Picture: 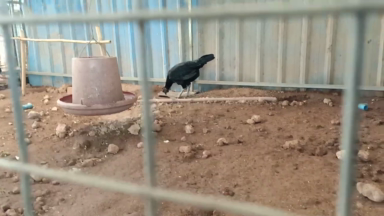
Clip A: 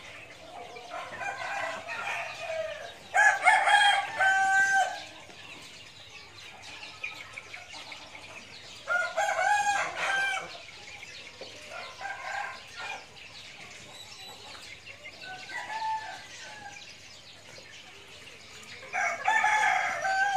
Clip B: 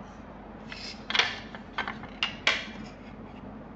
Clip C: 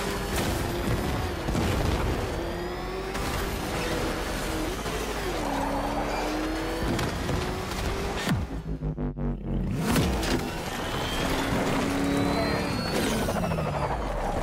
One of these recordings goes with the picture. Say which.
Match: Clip A